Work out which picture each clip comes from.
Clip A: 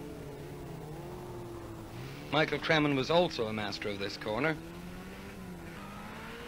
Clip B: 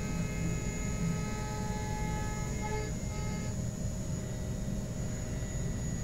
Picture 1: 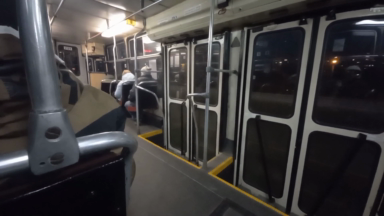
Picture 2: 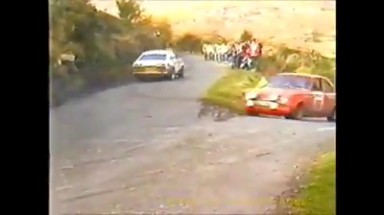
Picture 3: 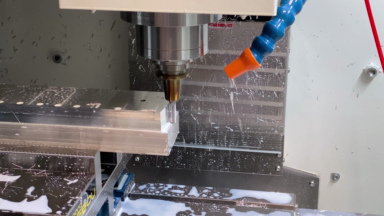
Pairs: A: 2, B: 3